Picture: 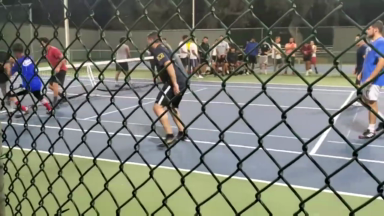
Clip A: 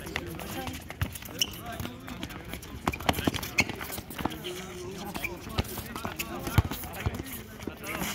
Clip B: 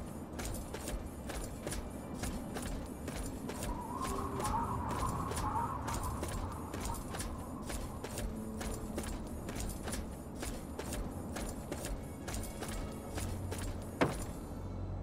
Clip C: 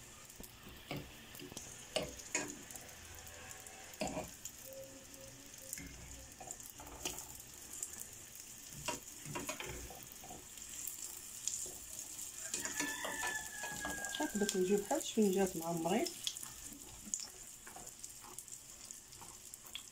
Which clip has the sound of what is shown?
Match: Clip A